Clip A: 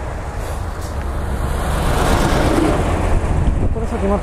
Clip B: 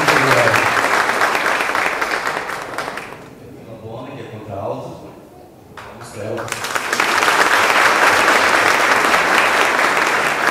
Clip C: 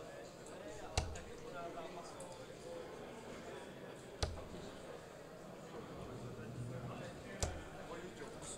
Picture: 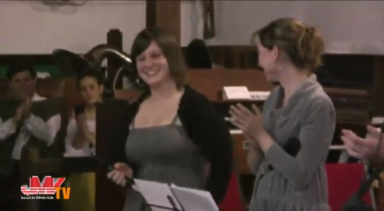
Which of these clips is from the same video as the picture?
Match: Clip B